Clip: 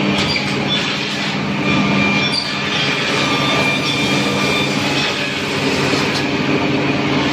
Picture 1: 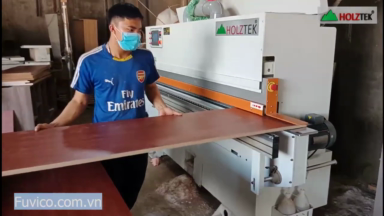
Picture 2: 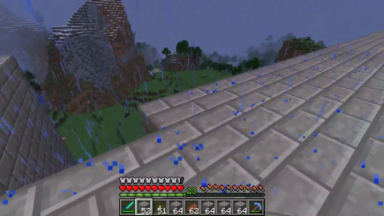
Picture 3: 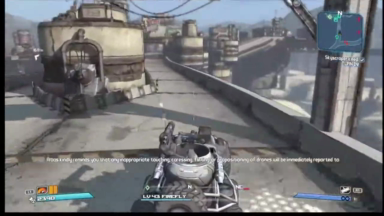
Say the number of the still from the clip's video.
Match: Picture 1